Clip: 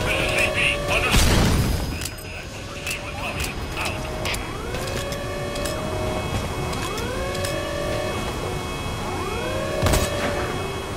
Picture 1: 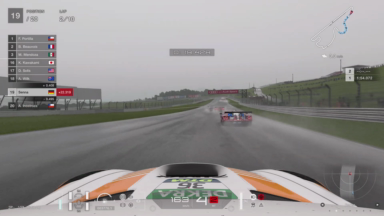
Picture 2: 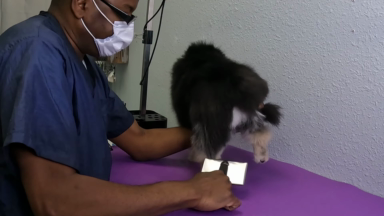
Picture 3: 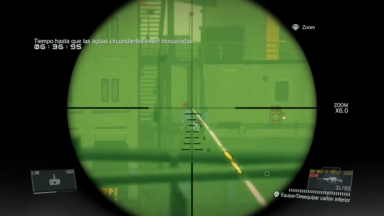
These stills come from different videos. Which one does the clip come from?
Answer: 3